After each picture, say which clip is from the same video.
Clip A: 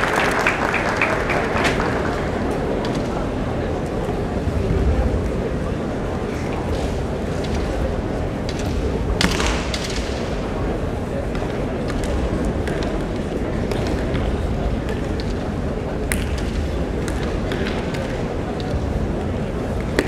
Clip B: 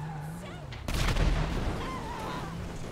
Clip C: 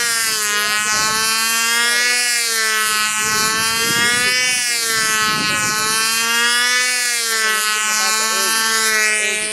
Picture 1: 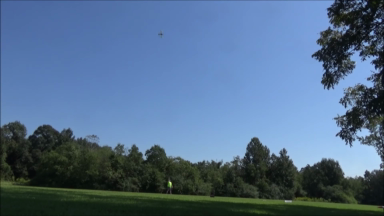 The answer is C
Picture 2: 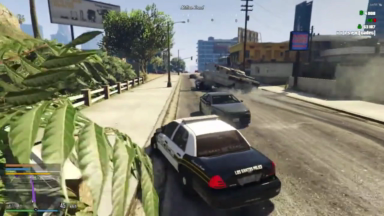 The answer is B